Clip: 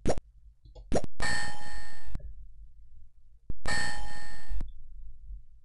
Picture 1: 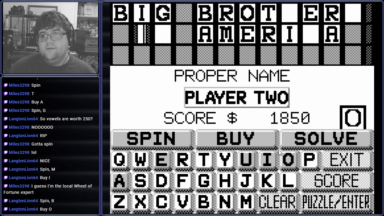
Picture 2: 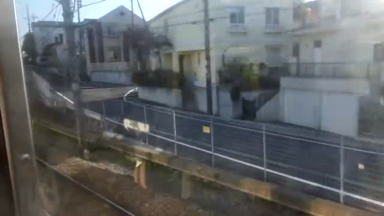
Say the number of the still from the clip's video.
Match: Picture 1